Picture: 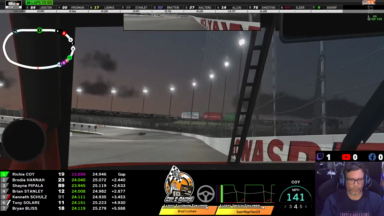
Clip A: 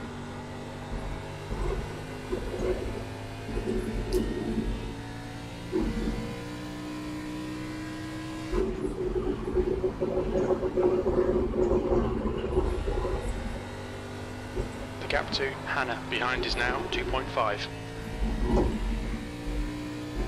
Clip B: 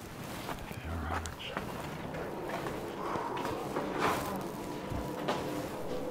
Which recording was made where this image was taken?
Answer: A